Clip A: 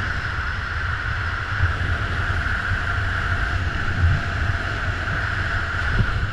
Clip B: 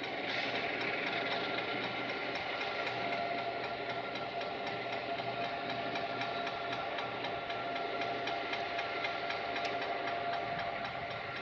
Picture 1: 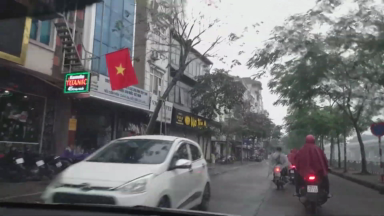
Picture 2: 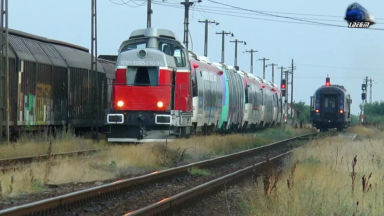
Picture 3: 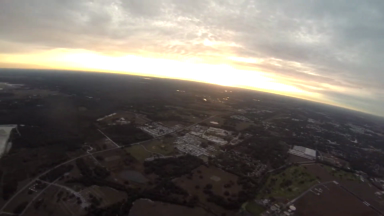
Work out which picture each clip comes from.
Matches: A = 3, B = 2